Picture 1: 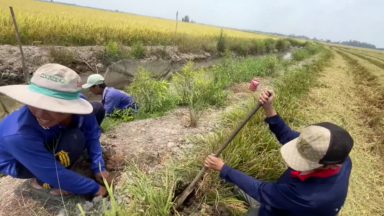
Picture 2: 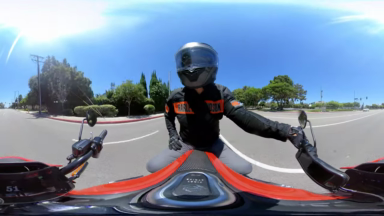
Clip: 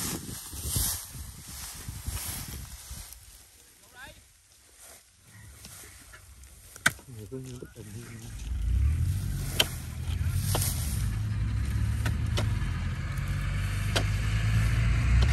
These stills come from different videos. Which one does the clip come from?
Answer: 1